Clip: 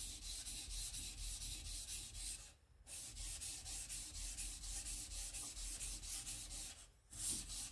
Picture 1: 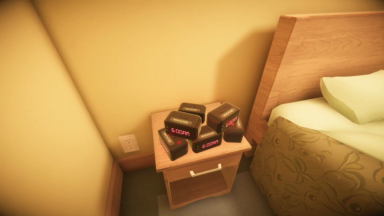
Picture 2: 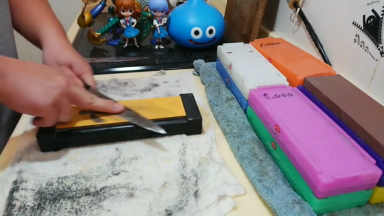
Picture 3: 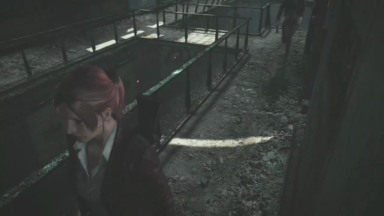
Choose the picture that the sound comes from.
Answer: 2